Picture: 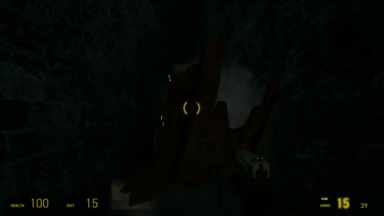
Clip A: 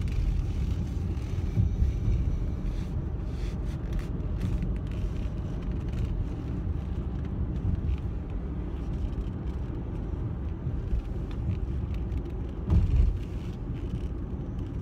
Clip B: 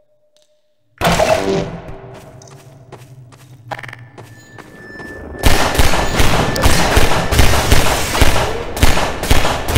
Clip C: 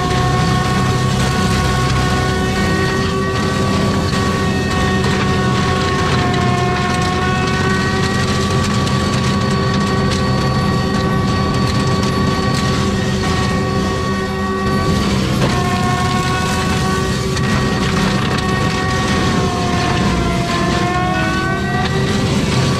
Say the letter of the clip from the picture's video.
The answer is B